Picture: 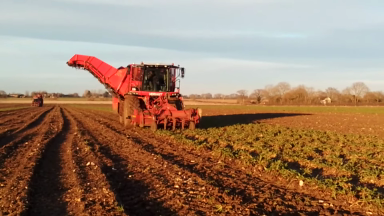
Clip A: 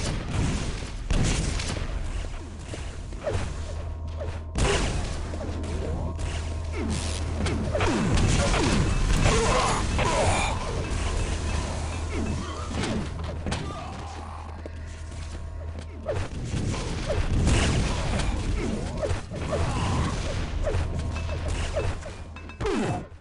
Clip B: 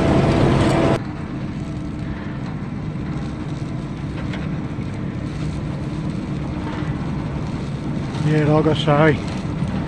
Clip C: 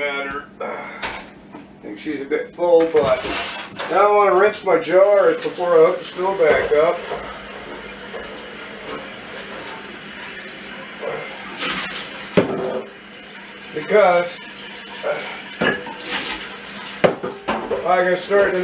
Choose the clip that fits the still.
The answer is B